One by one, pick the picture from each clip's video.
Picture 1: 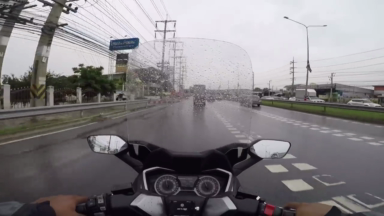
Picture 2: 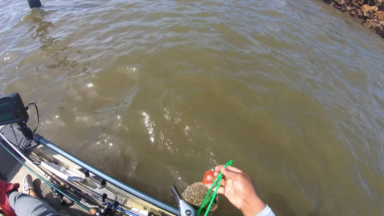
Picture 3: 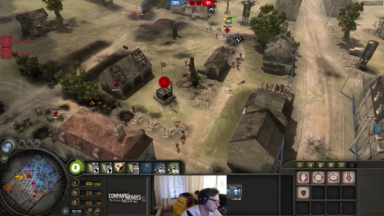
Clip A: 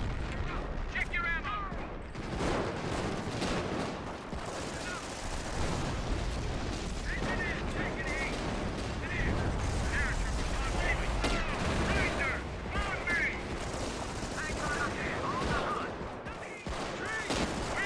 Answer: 3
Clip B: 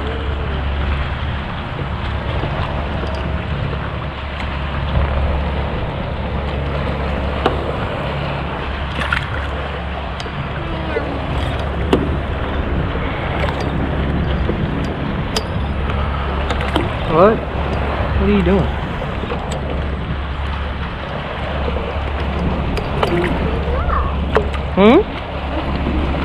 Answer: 2